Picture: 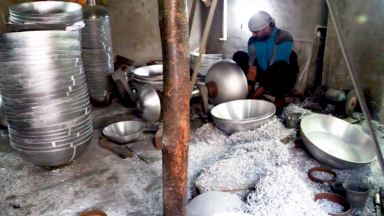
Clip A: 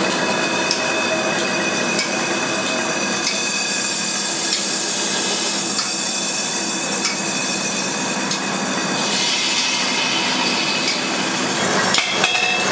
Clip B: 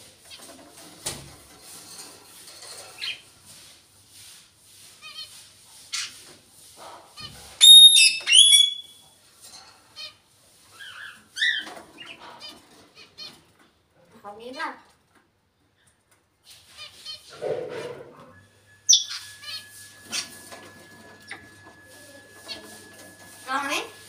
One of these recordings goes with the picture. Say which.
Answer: A